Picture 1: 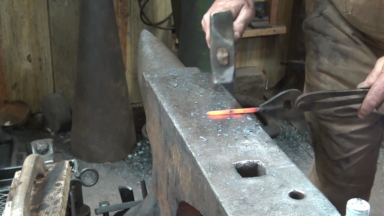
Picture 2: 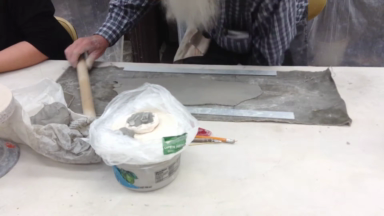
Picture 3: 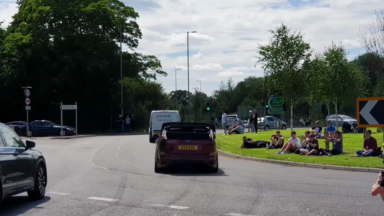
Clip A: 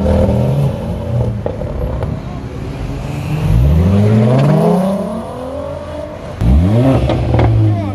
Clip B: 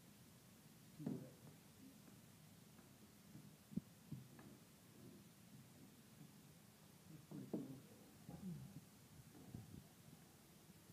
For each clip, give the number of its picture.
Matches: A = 3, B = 2